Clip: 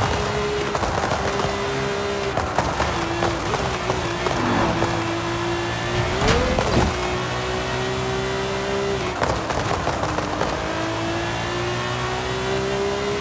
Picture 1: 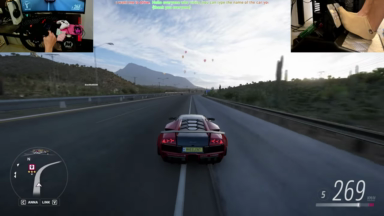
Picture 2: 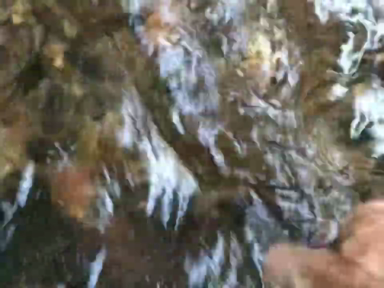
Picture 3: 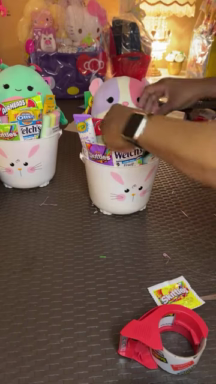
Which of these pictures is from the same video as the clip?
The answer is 1